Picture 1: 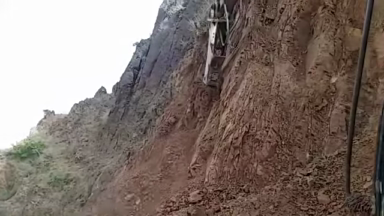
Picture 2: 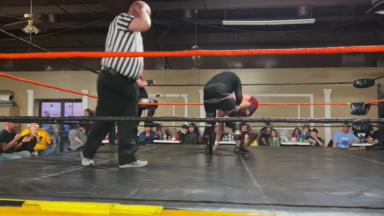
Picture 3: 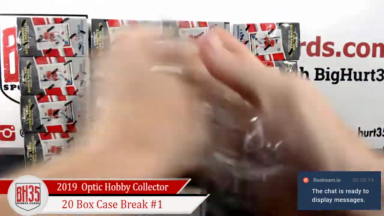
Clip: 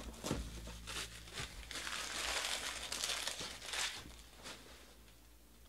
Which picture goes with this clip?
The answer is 3